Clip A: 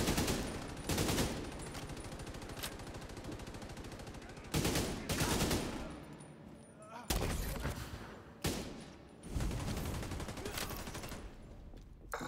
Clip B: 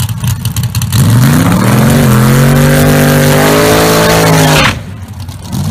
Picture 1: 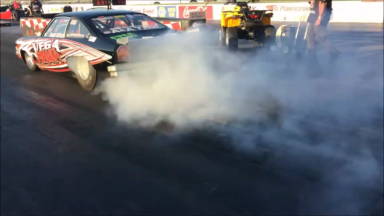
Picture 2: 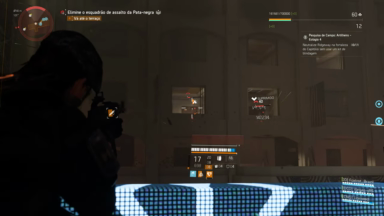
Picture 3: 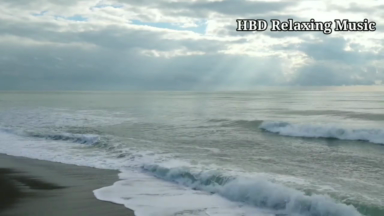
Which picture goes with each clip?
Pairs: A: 2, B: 1